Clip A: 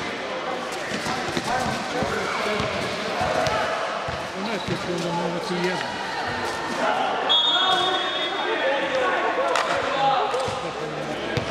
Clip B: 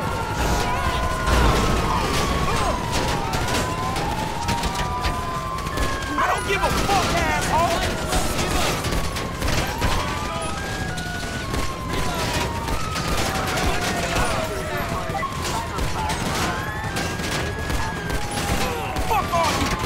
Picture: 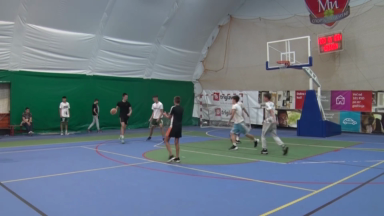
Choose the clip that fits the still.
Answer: A